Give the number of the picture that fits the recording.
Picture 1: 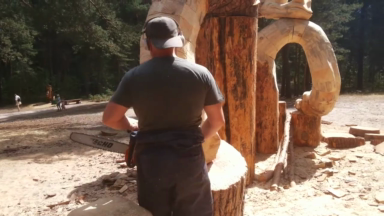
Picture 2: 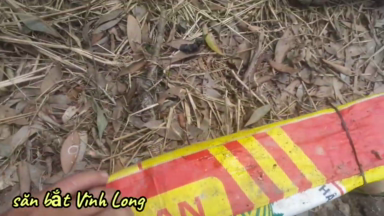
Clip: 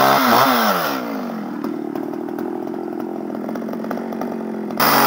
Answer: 1